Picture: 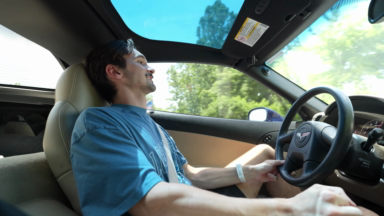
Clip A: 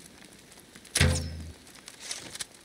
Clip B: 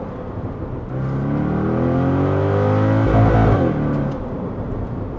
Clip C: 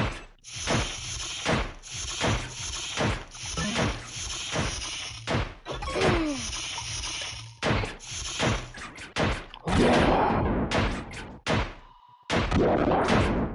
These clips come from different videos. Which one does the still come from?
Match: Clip B